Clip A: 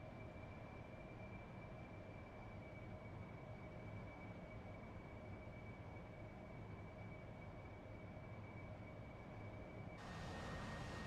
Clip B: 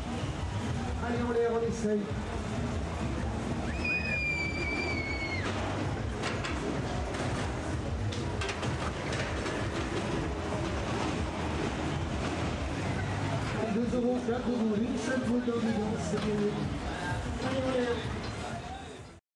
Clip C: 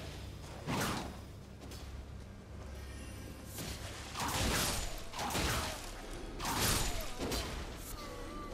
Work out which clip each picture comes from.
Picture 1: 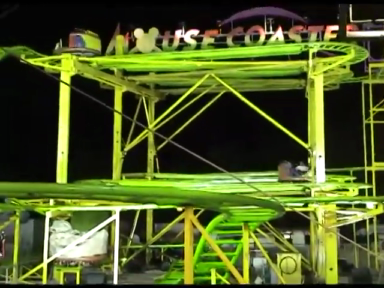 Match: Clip B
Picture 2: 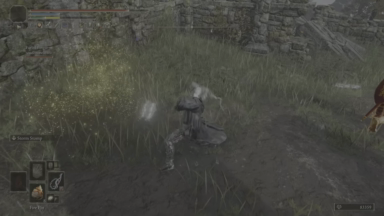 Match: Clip C